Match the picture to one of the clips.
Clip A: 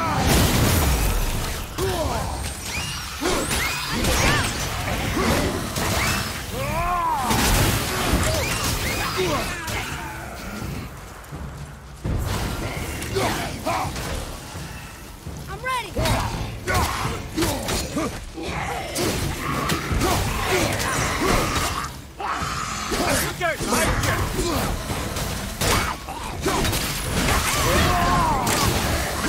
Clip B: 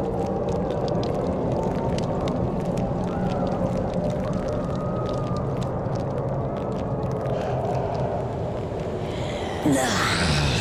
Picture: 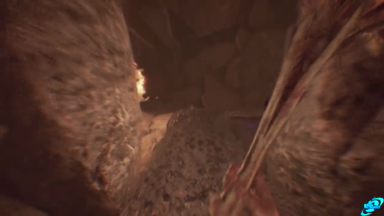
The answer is B